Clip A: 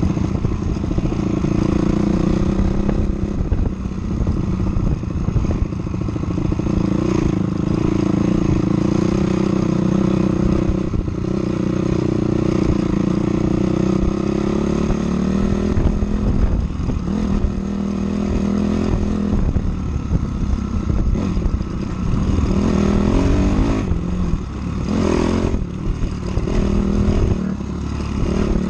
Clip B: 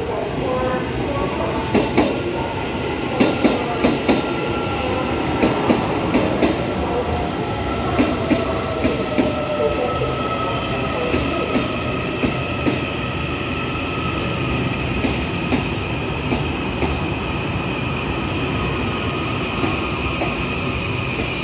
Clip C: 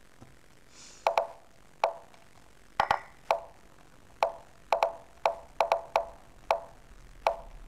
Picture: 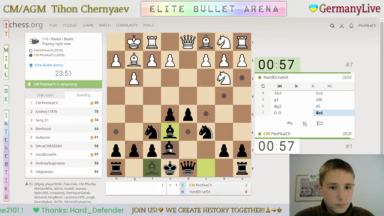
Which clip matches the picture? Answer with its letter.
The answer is C